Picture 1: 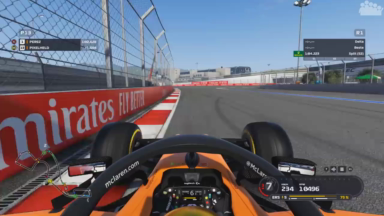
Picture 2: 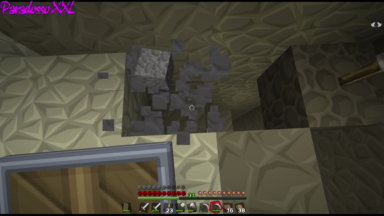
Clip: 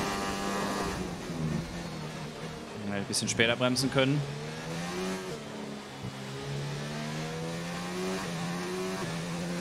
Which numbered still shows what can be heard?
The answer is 1